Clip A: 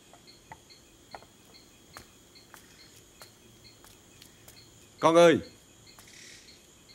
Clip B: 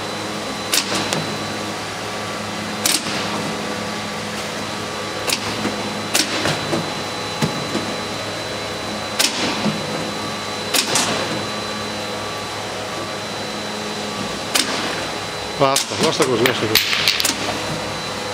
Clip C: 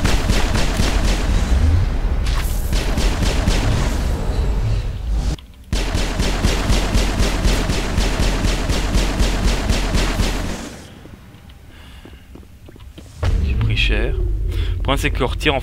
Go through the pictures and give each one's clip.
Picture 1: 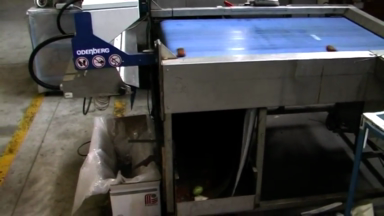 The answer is B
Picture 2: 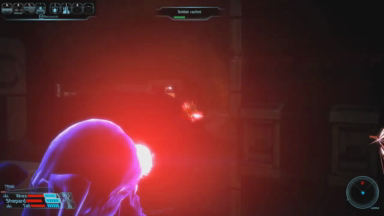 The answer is C